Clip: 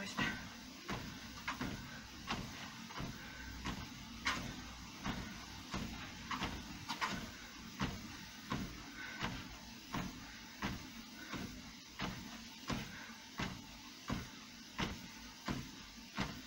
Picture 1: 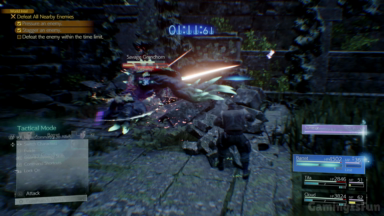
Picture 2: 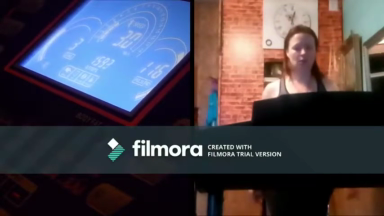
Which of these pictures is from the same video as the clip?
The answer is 2